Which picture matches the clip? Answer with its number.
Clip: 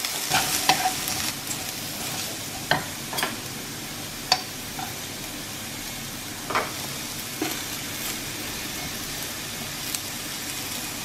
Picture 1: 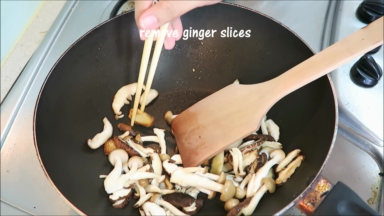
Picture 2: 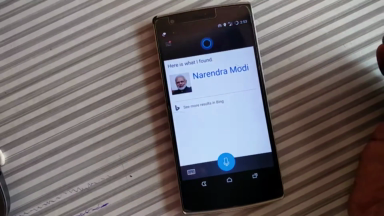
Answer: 1